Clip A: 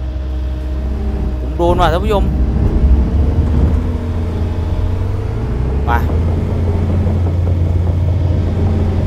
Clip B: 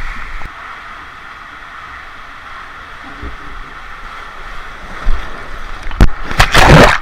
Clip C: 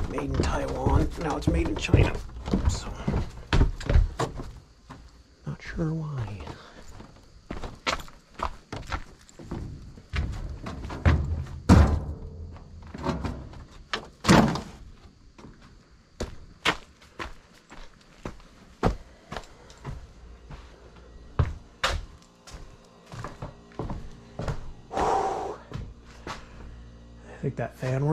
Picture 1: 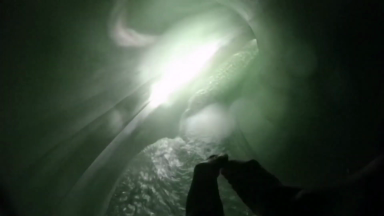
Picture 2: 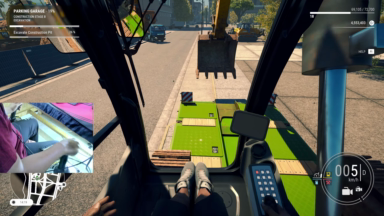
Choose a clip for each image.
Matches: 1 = B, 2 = A